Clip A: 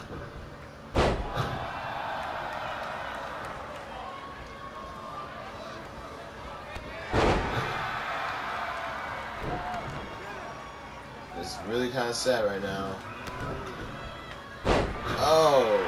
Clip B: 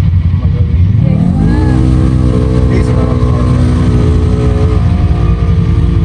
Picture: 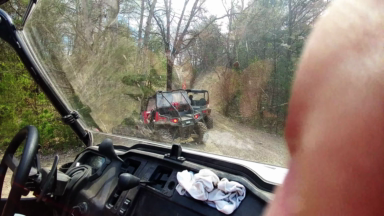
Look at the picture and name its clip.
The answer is B